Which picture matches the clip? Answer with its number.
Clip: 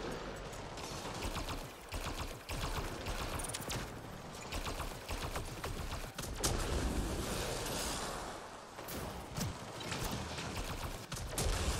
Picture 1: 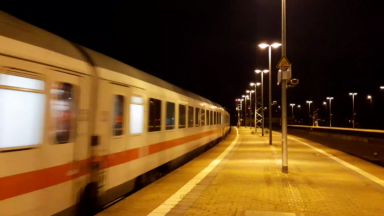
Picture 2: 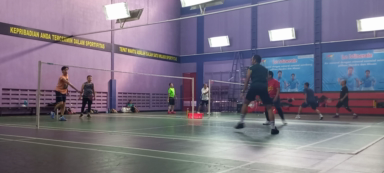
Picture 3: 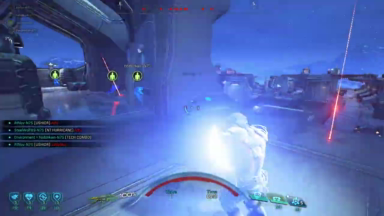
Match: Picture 3